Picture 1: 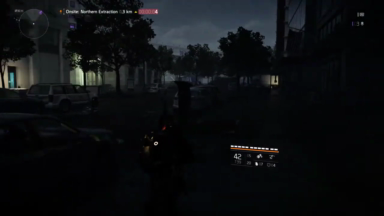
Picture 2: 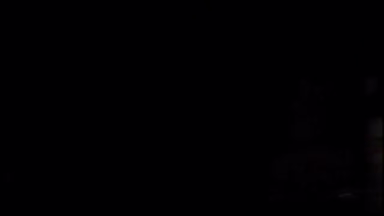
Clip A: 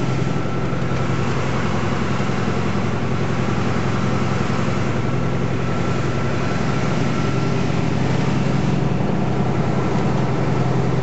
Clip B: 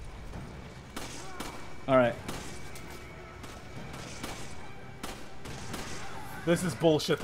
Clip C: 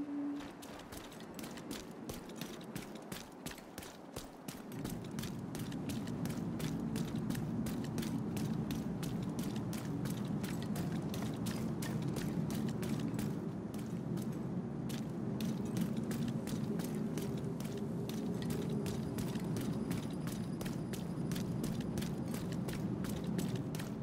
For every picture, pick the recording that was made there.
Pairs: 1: C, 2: A